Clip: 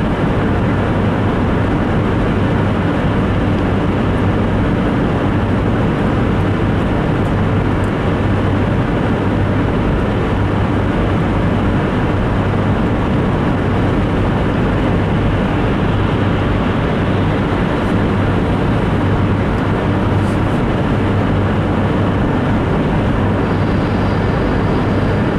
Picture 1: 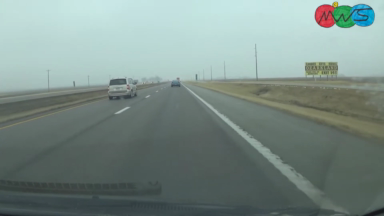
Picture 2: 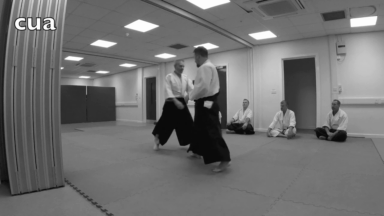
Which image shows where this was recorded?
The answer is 1